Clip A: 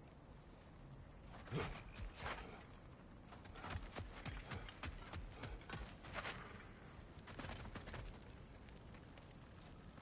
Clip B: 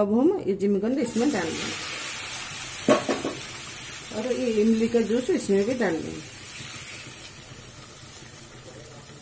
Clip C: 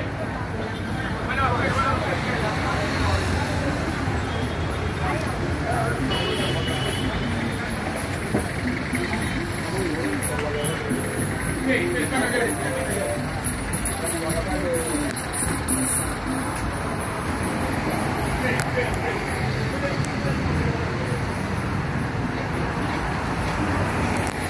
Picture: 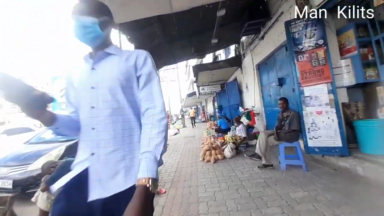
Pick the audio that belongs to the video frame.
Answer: C